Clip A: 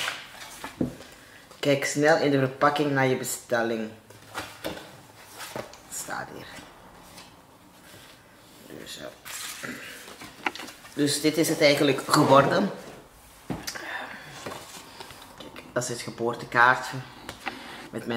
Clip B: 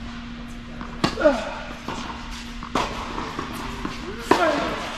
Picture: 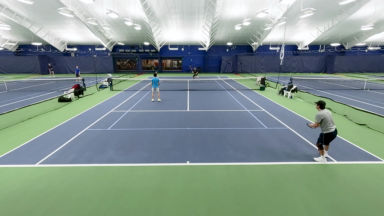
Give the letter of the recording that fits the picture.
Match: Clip B